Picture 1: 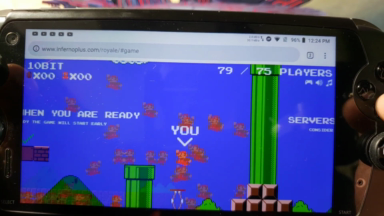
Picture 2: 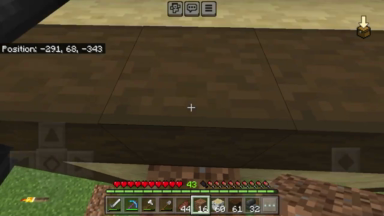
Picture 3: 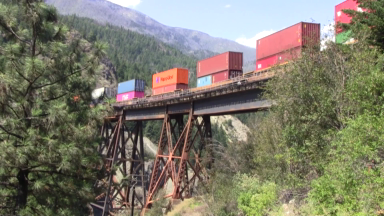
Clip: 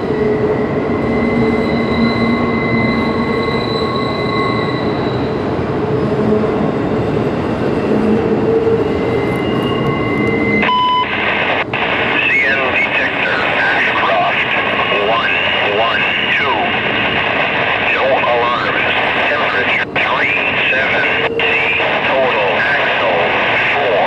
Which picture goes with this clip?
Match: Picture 3